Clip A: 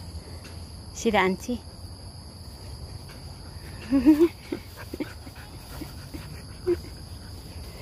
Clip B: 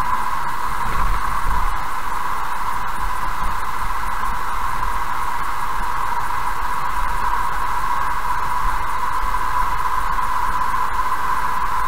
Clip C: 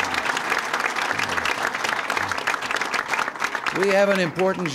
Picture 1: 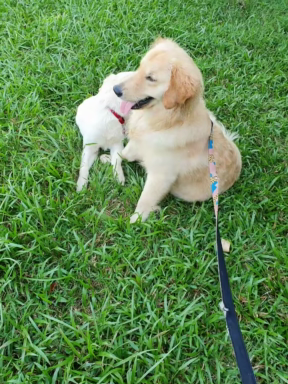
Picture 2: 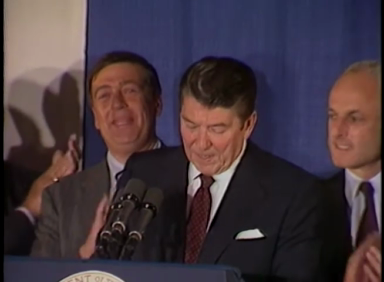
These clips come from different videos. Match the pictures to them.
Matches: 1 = A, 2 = C